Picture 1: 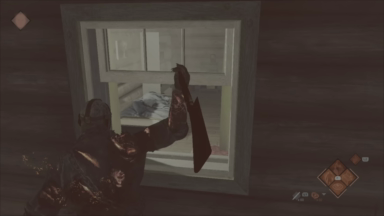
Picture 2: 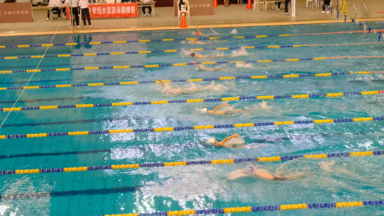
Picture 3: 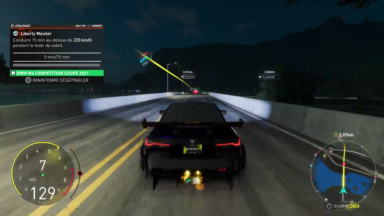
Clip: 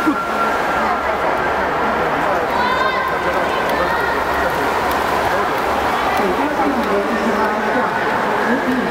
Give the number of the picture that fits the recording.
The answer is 2